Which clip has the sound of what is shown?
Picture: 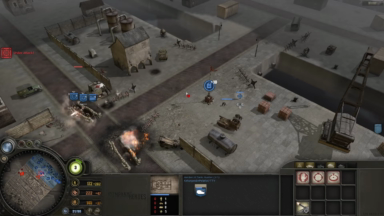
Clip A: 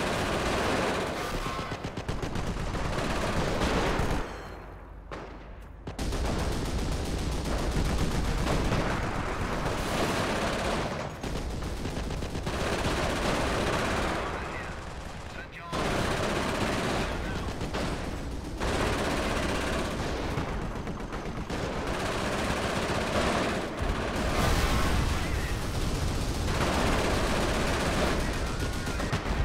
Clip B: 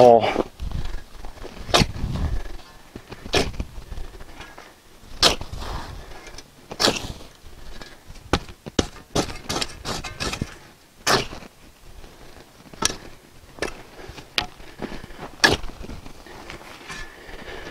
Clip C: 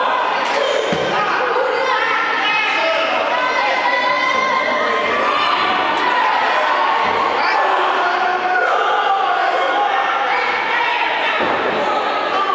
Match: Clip A